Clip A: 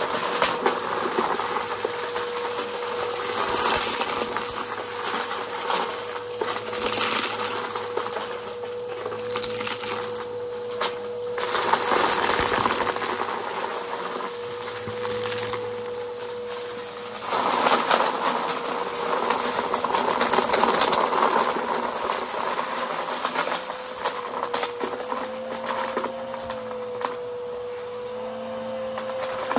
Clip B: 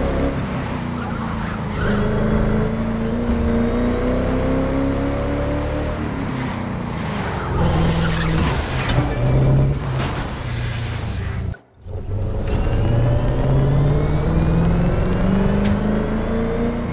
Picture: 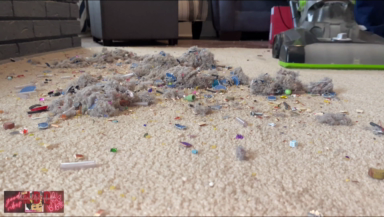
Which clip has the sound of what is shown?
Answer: A